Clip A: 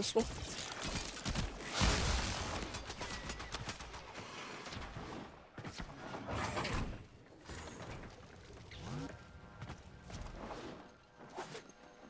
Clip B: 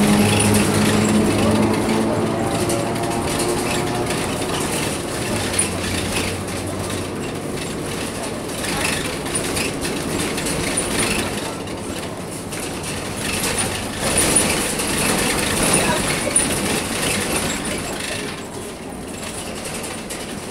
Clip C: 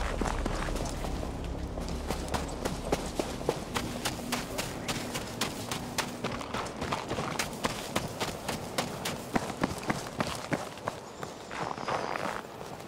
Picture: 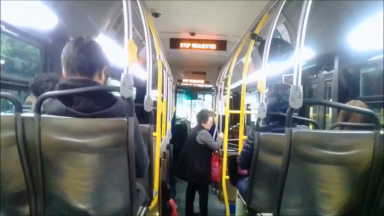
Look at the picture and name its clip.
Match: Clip B